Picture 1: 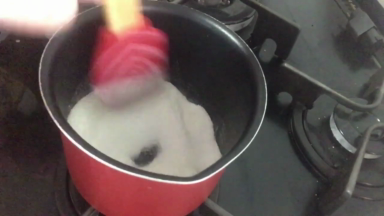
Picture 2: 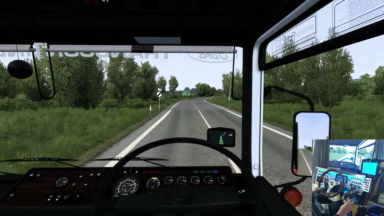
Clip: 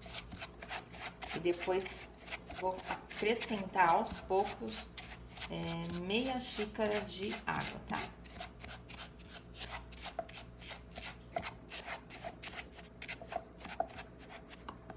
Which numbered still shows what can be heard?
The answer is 1